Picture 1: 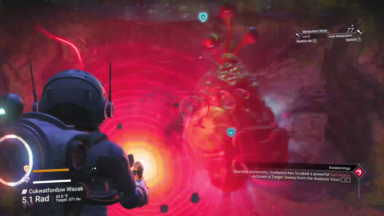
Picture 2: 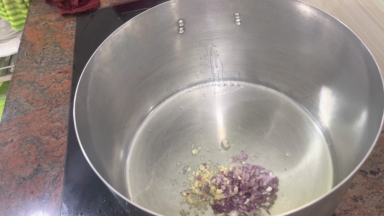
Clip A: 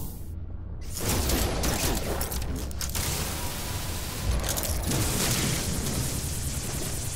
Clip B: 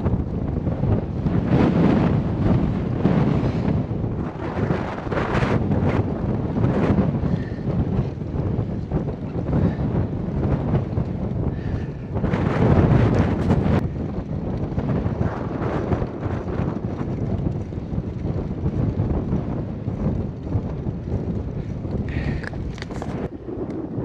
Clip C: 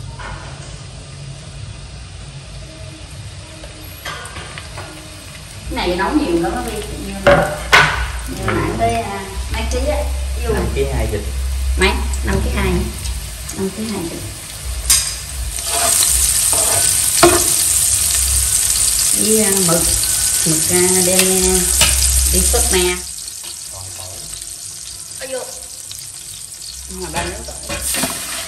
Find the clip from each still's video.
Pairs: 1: A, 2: C